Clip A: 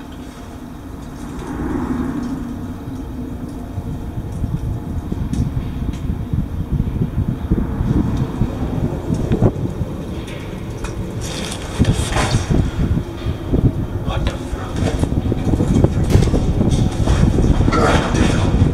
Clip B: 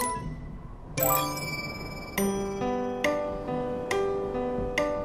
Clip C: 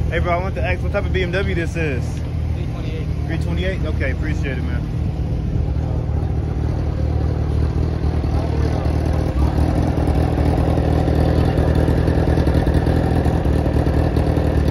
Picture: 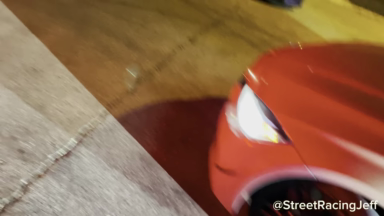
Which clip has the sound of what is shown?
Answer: C